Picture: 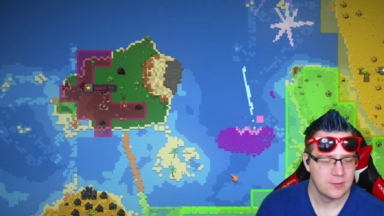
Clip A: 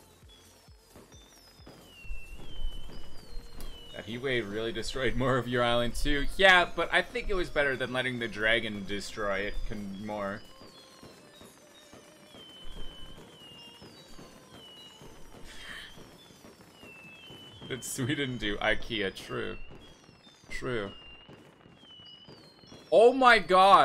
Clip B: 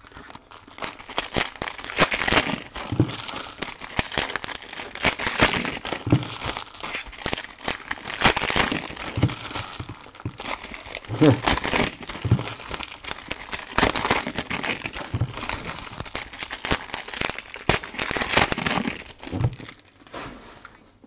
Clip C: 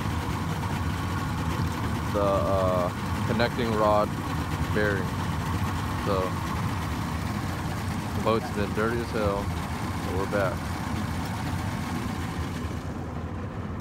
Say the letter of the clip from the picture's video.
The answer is A